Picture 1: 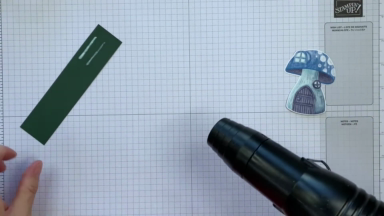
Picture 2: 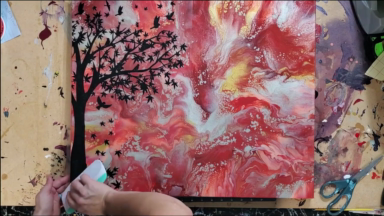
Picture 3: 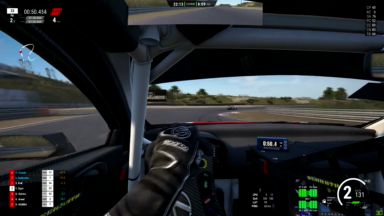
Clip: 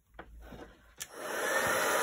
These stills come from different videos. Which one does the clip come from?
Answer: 1